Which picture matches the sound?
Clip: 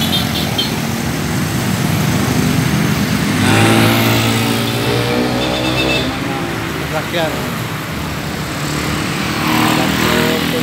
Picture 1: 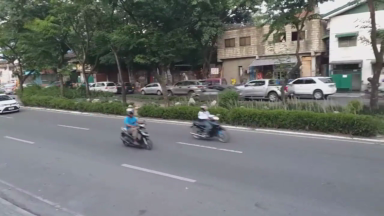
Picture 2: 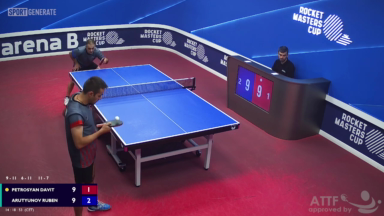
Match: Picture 1